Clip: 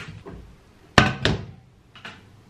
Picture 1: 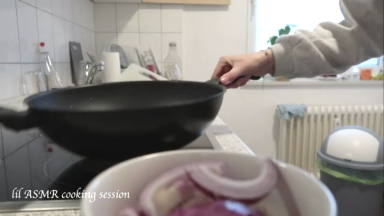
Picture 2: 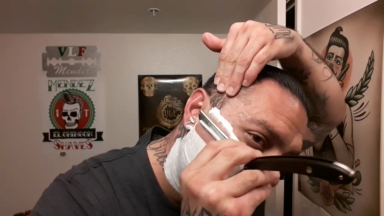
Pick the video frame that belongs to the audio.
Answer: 1